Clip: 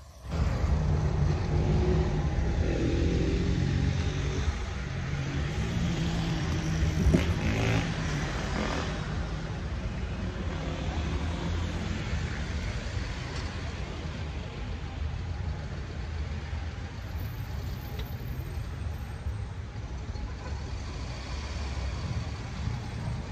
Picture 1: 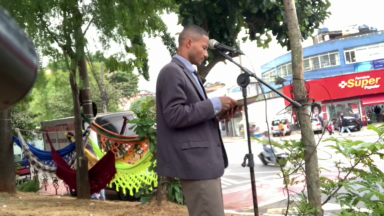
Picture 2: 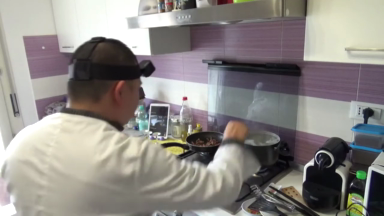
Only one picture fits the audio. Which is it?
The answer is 1